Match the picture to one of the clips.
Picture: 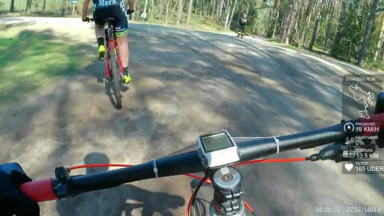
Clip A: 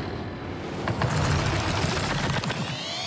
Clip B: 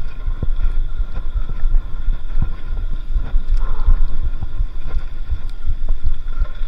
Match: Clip B